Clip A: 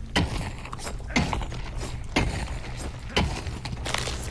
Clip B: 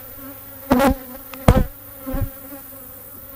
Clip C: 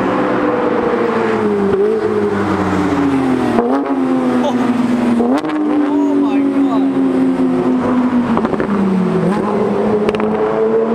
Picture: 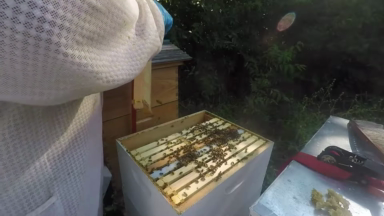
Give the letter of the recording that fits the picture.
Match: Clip B